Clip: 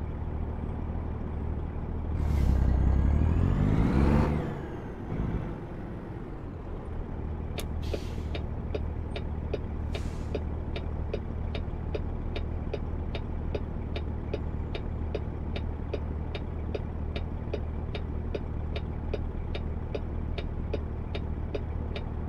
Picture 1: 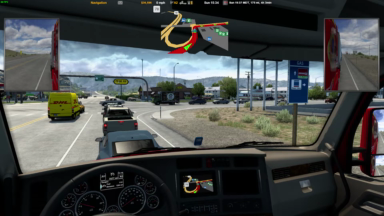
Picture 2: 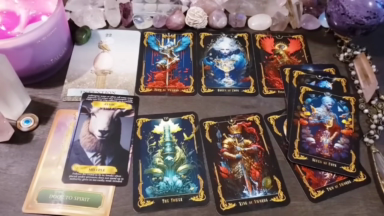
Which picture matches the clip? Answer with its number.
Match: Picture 1